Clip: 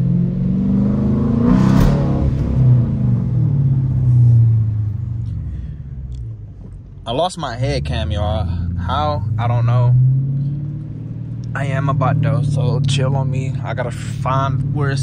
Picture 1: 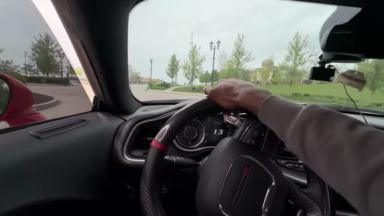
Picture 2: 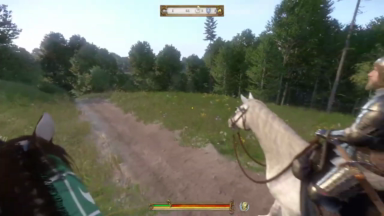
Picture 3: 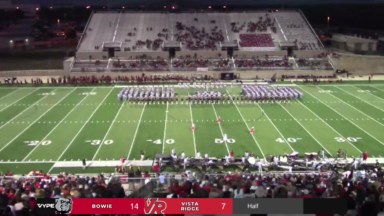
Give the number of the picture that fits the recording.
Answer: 1